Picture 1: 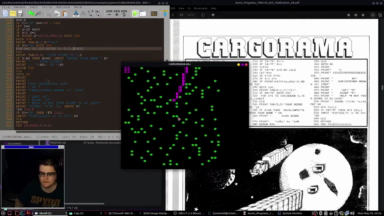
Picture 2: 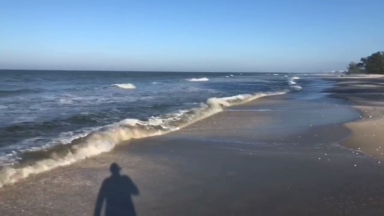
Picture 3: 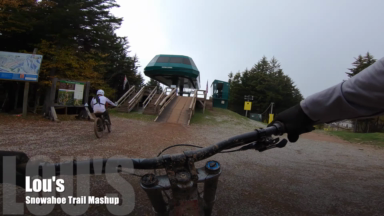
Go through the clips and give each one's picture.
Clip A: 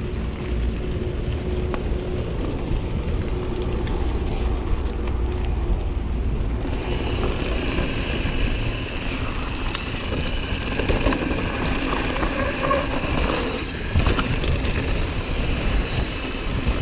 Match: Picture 3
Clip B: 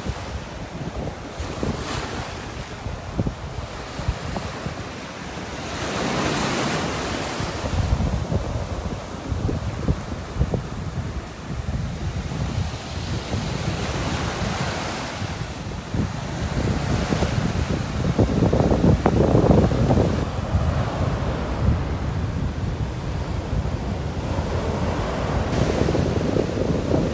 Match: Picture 2